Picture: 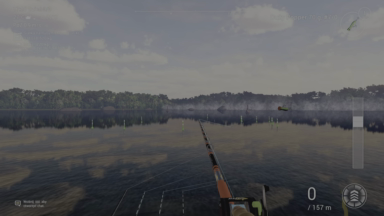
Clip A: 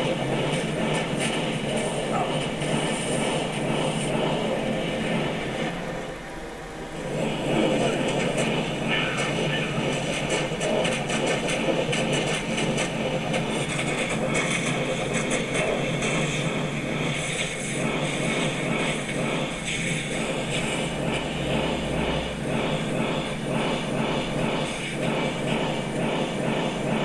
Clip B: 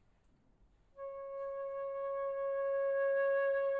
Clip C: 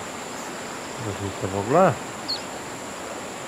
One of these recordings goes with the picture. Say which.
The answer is C